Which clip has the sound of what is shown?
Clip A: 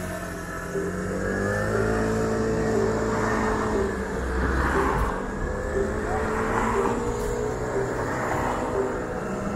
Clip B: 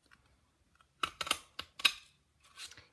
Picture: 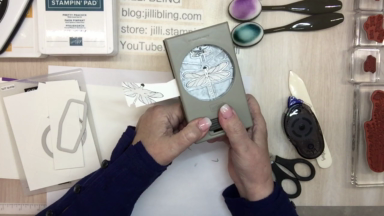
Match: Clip B